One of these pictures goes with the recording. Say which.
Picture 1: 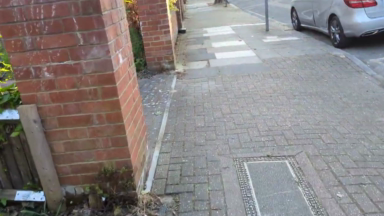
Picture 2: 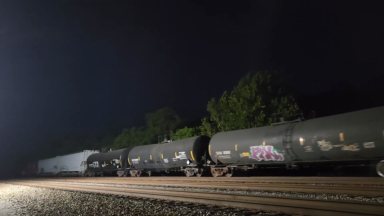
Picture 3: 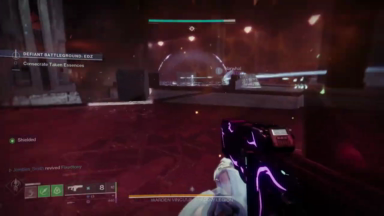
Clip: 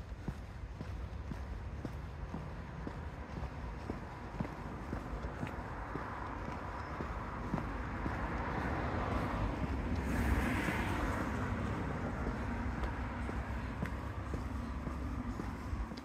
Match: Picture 1